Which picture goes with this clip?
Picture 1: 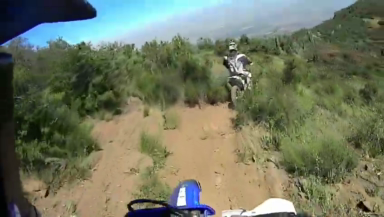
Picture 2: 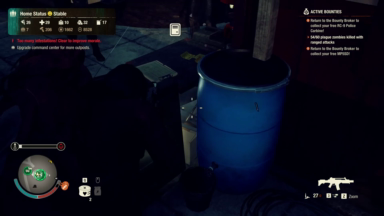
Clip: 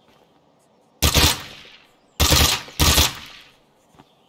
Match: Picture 2